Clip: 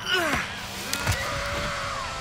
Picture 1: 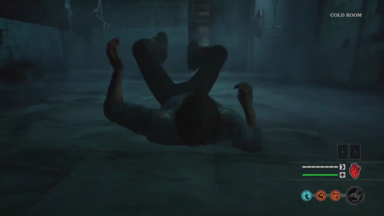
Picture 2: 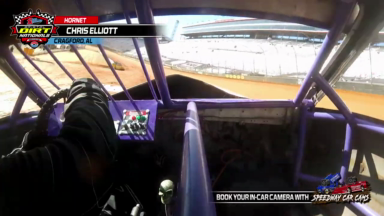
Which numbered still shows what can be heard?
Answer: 1